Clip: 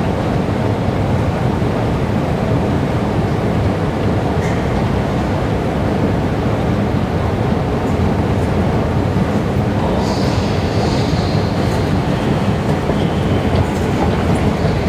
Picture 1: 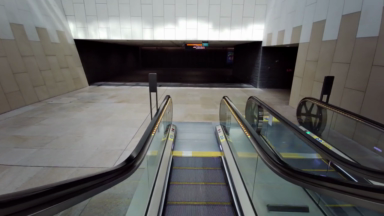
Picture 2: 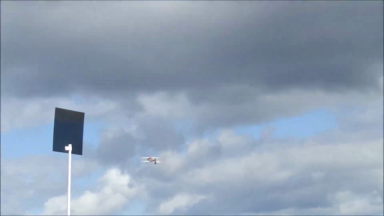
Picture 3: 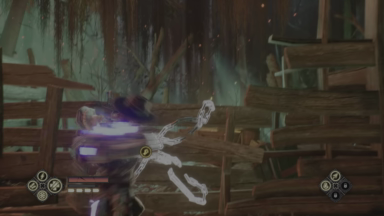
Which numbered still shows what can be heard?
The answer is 1